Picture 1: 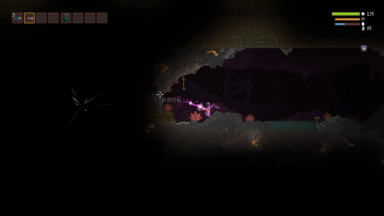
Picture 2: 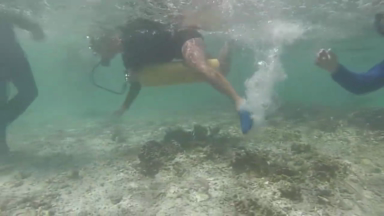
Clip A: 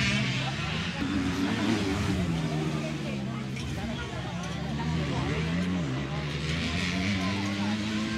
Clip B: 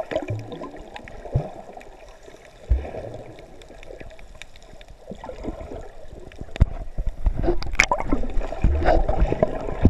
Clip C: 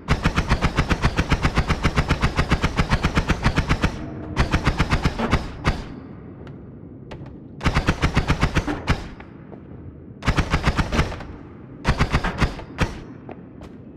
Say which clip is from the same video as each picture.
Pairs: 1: C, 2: B